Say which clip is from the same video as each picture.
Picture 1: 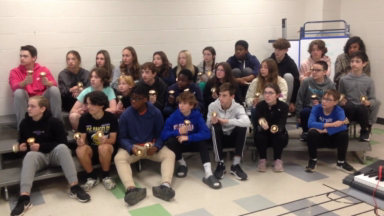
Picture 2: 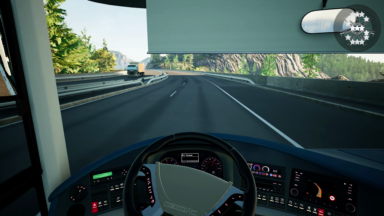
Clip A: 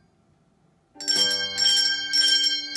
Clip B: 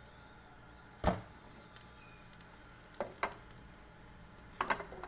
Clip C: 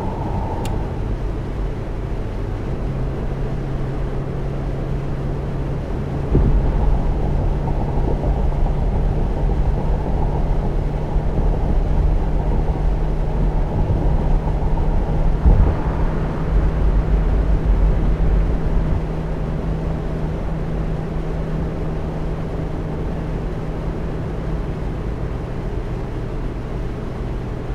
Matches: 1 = A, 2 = C